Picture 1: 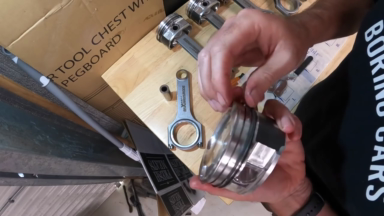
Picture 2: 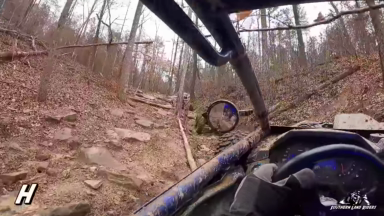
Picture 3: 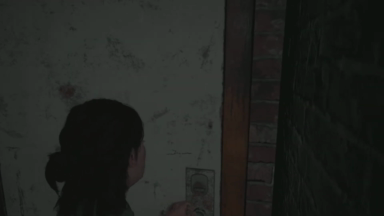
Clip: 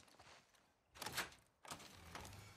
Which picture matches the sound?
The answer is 3